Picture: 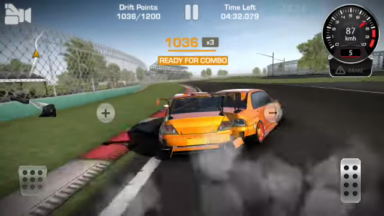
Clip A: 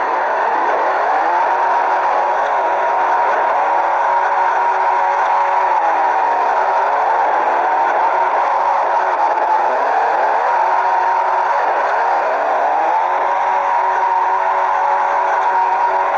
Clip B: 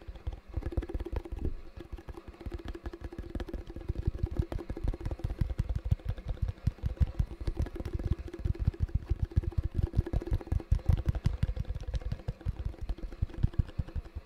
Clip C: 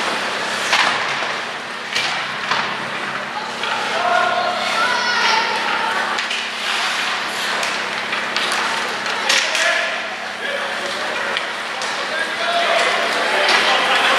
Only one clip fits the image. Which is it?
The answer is A